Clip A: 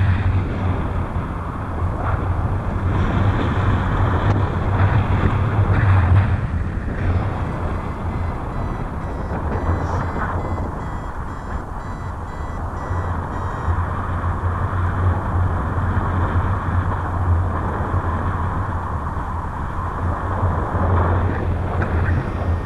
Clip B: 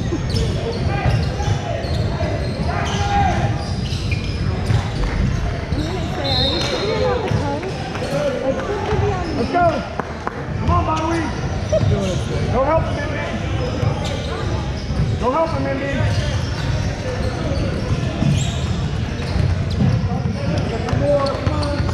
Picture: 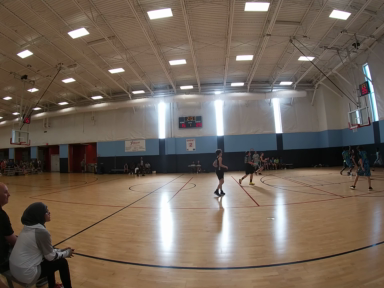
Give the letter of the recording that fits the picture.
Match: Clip B